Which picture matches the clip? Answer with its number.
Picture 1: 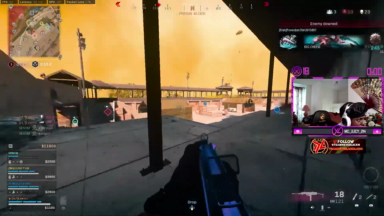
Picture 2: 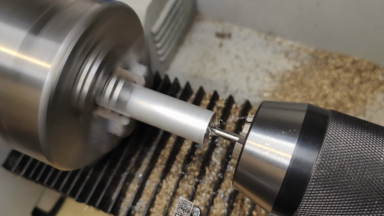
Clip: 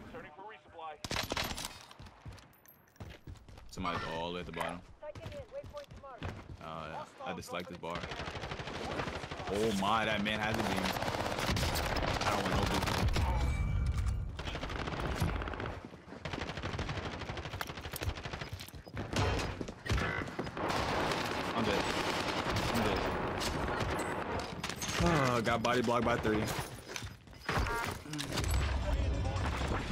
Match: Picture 1